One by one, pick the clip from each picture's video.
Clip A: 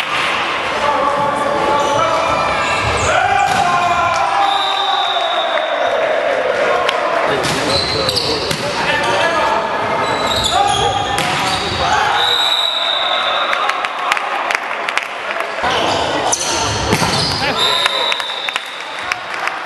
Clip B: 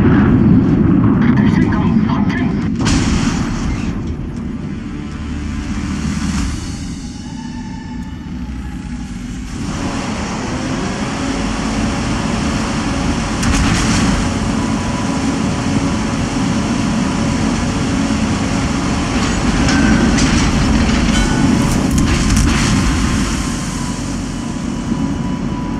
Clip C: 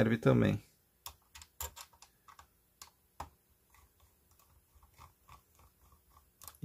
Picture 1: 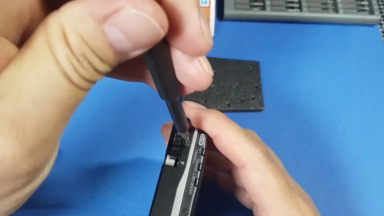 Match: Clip C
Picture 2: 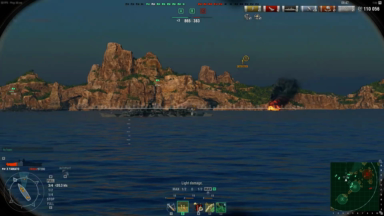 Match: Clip B